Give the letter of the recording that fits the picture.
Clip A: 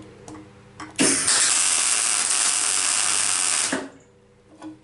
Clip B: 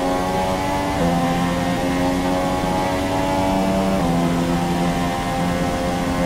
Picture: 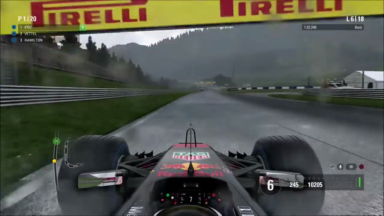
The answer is B